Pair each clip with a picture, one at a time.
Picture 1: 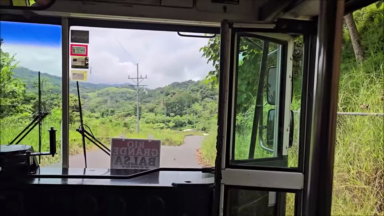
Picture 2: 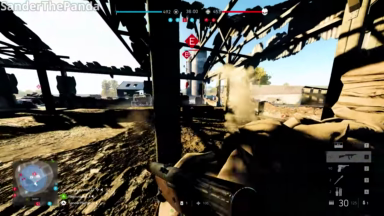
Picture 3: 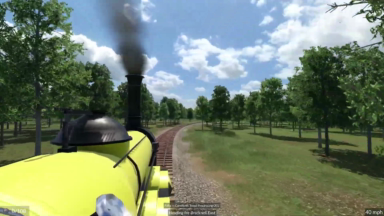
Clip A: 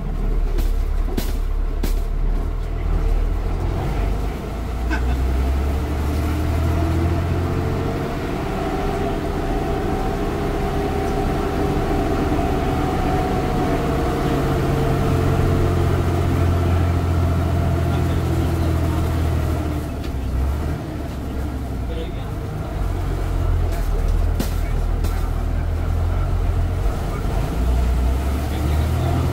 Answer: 1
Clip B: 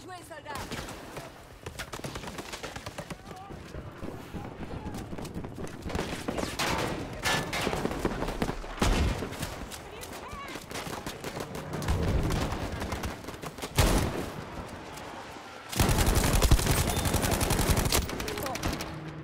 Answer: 2